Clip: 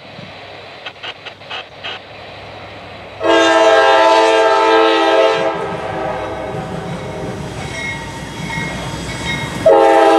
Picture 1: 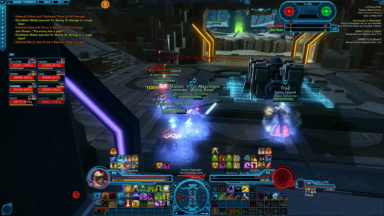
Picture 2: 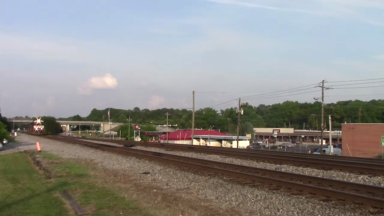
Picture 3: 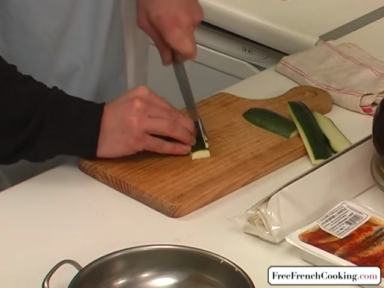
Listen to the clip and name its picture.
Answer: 2